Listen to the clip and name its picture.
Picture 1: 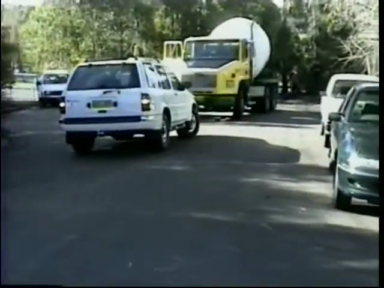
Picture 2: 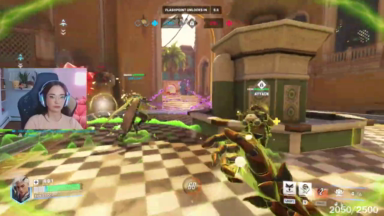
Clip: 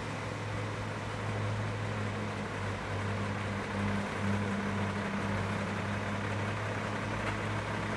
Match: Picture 1